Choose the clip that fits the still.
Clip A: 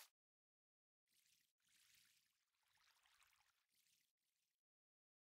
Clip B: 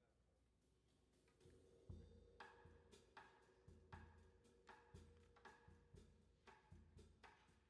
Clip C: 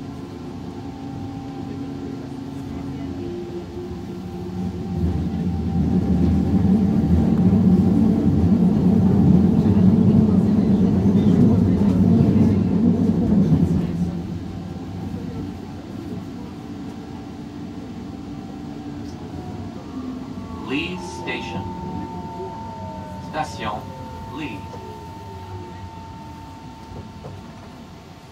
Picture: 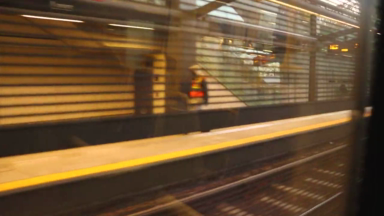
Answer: C